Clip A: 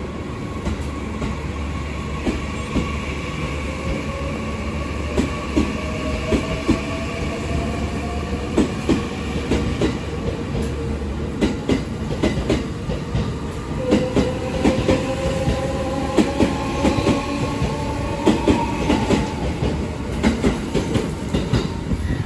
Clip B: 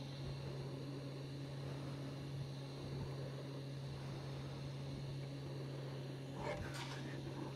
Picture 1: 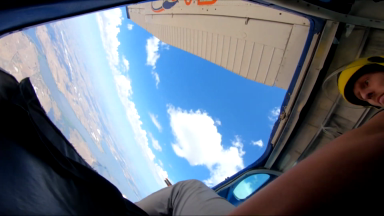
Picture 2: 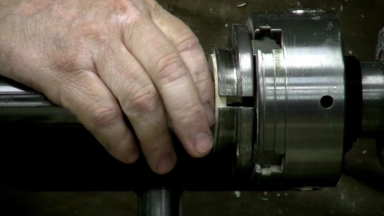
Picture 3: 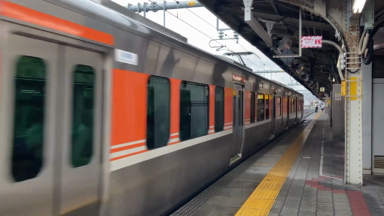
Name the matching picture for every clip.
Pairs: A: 3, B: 2